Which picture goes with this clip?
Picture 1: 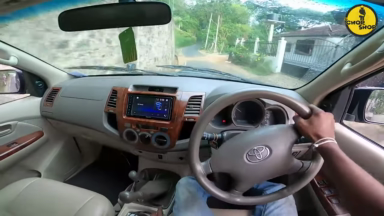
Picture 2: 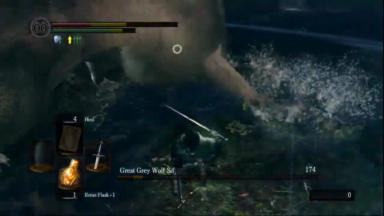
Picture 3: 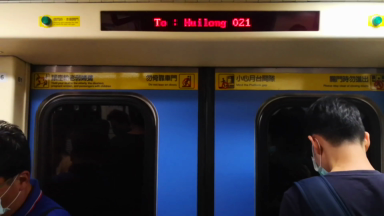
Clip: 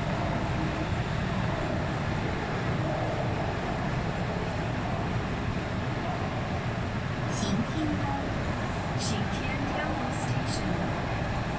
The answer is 3